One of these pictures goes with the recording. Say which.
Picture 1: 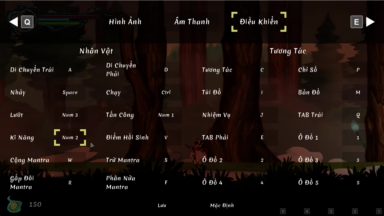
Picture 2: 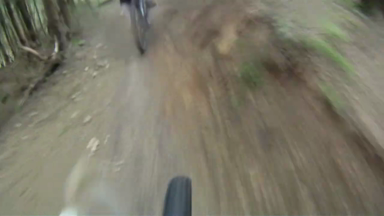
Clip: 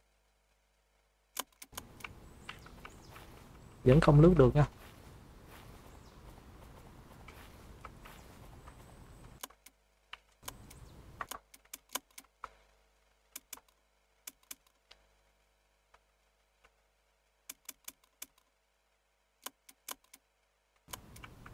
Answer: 1